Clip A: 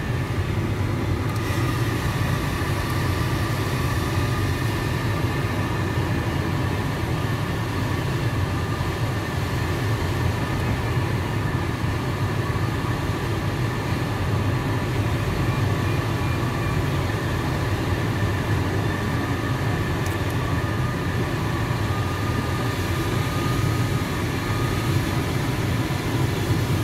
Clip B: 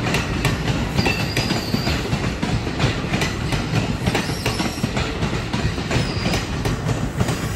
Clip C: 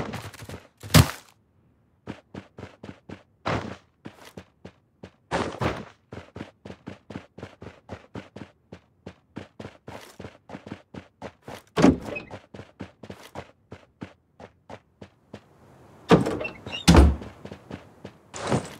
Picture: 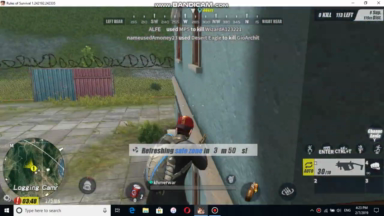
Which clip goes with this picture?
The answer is C